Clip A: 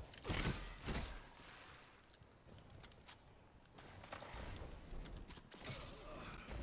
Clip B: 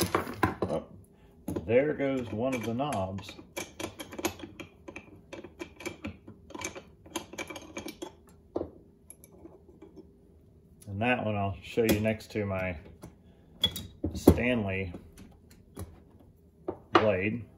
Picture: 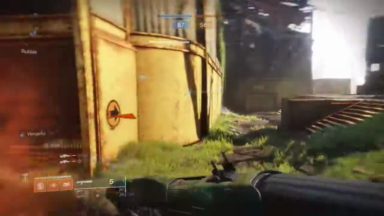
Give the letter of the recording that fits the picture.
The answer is A